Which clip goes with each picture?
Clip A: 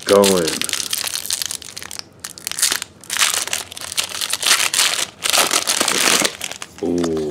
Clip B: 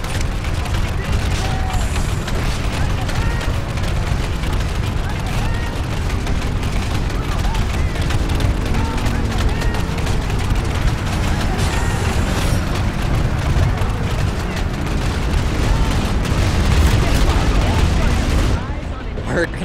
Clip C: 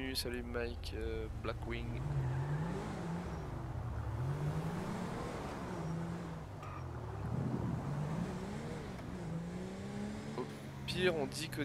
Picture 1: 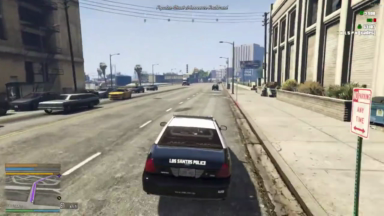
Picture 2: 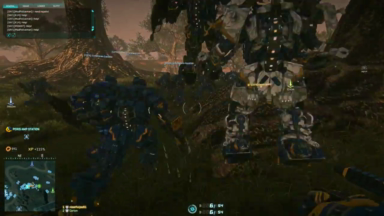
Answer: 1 C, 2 B